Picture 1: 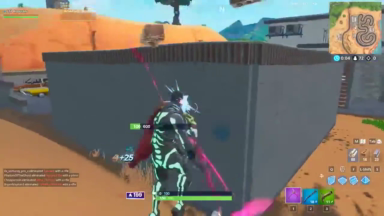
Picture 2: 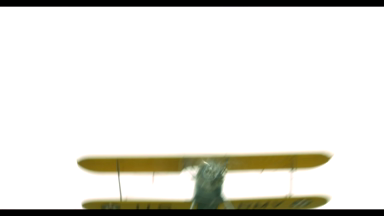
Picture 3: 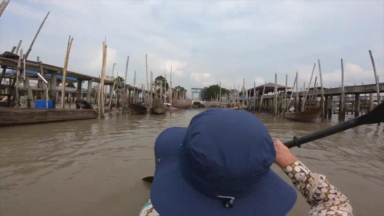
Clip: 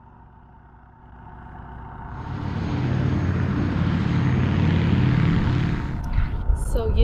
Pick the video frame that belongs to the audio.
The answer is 2